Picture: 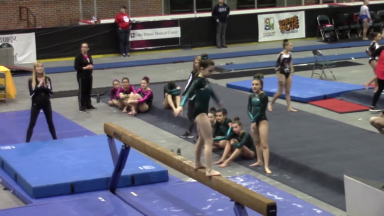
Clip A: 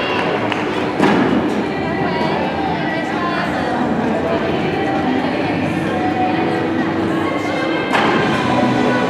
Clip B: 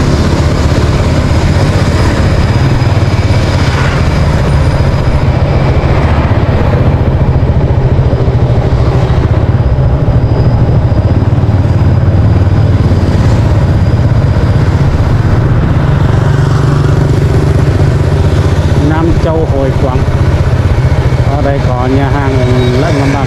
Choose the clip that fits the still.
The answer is A